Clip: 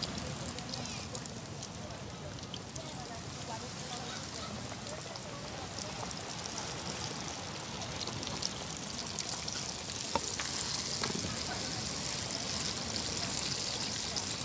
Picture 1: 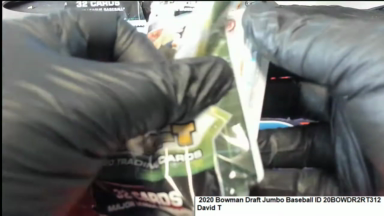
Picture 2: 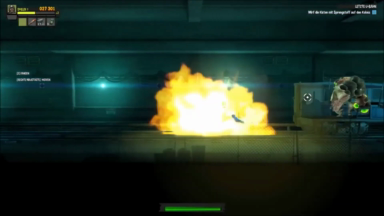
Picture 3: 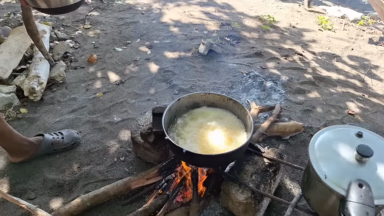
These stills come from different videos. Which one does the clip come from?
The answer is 3